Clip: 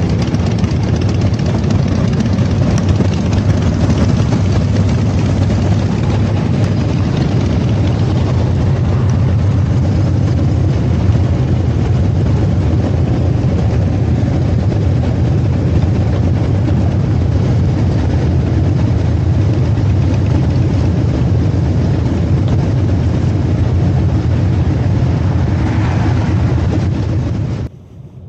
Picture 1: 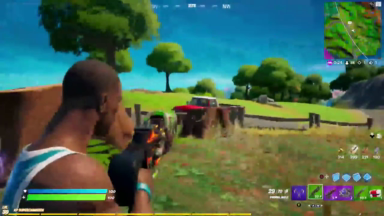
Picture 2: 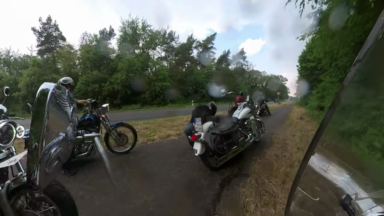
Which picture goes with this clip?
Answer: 2